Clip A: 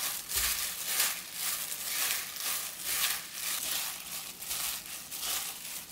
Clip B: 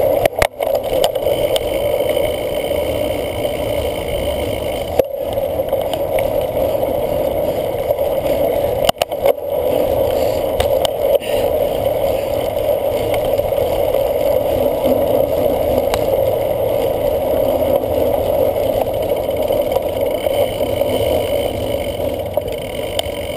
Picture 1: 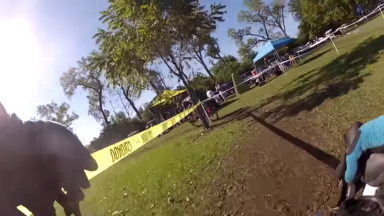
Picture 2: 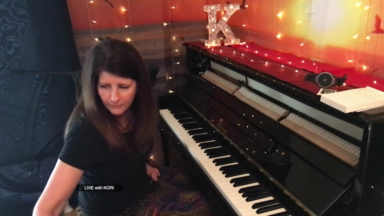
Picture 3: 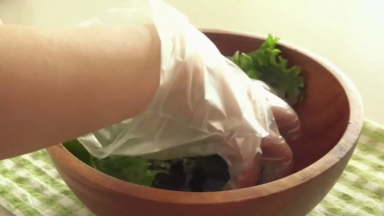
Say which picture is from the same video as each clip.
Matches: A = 3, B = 1